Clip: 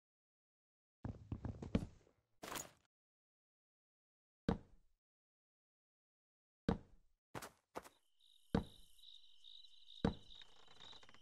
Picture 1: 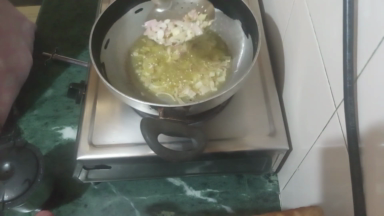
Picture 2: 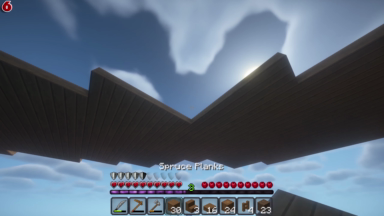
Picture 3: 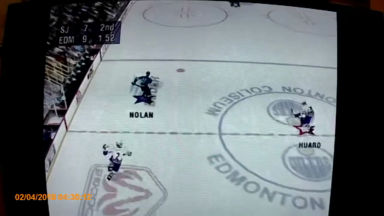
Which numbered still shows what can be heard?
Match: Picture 2